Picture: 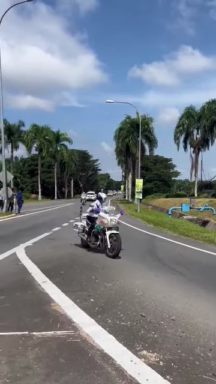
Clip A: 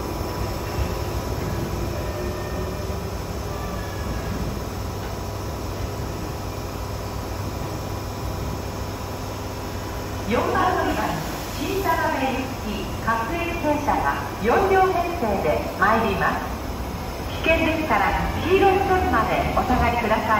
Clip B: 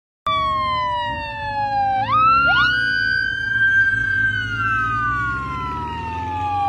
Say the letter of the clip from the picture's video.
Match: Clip B